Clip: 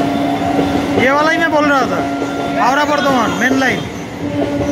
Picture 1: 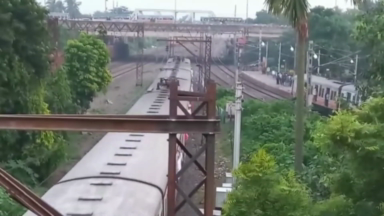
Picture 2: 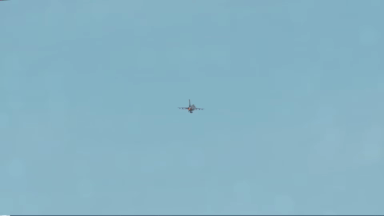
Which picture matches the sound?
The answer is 1